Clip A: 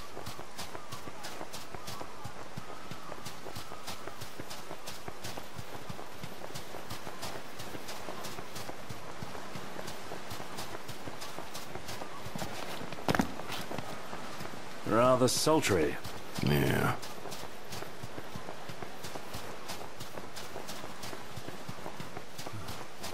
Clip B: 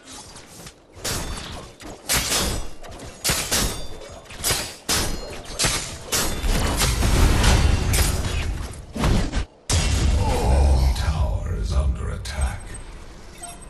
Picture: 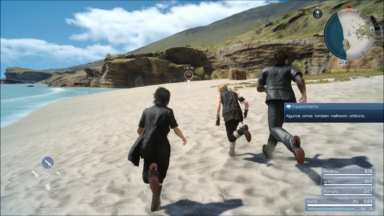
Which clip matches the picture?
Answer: A